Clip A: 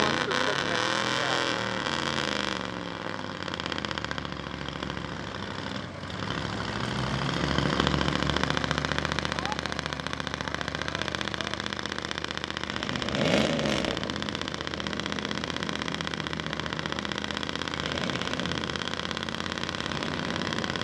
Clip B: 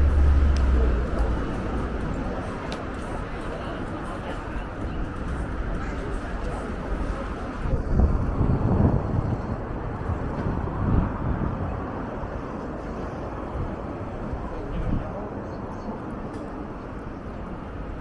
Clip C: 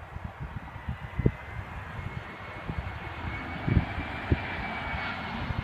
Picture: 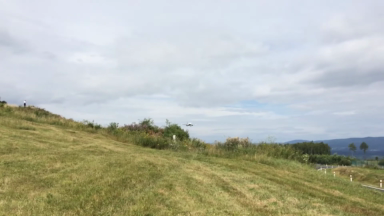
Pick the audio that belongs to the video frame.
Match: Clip C